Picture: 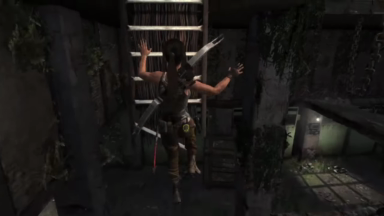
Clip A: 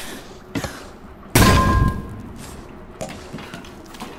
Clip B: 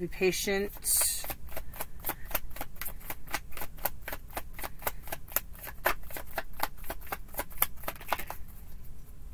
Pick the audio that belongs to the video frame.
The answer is A